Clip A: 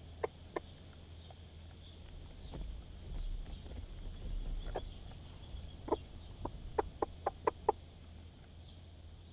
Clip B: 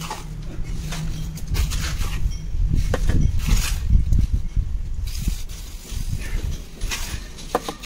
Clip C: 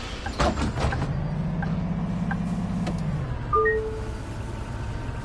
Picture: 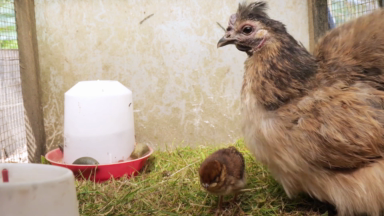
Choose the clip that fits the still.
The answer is A